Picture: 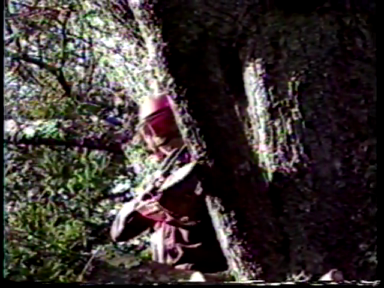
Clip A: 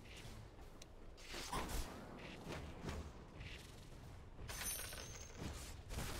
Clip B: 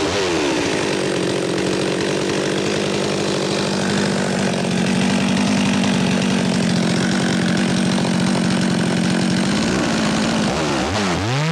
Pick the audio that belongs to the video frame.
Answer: B